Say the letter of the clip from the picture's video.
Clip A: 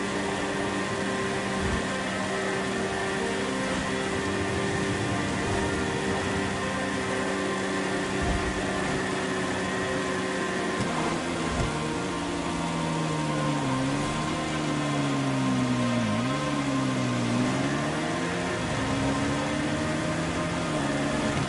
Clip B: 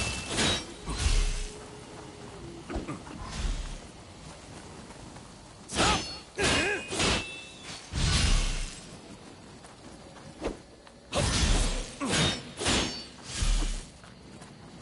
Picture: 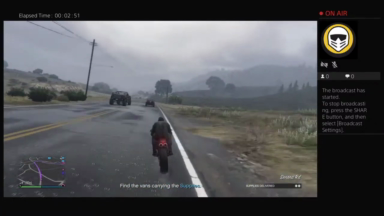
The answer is A